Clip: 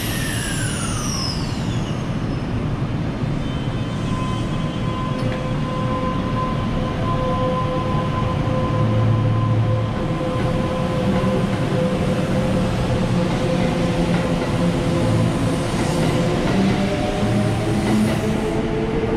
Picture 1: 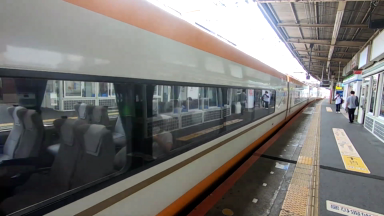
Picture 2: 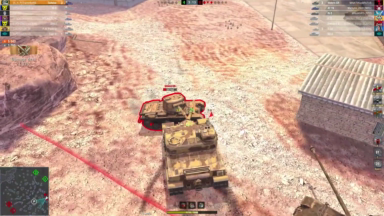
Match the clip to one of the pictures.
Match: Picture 1